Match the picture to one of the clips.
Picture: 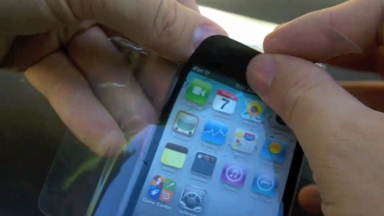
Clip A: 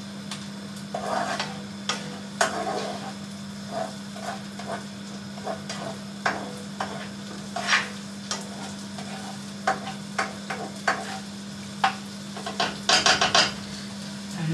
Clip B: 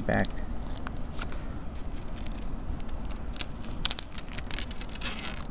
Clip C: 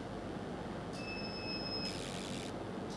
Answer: B